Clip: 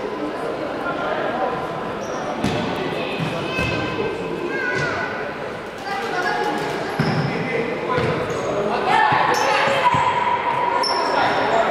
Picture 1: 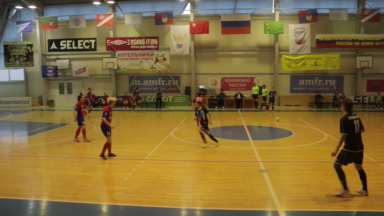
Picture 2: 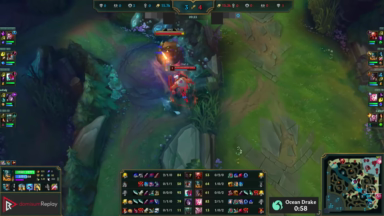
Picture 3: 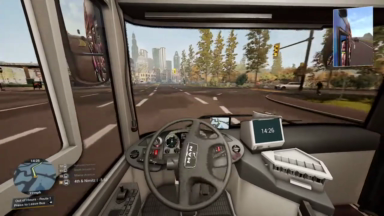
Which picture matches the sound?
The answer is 1